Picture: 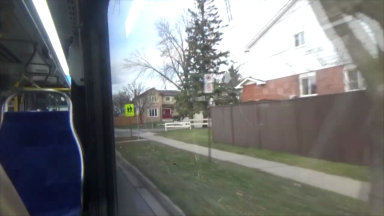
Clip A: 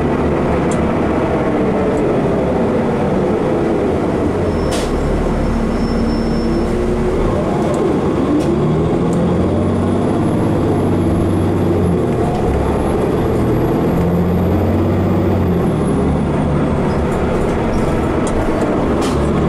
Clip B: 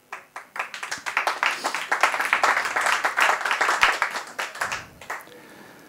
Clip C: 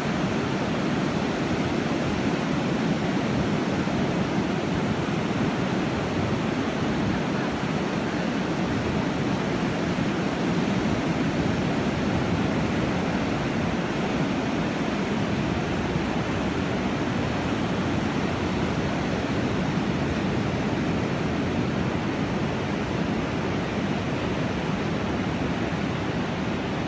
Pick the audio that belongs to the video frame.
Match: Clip A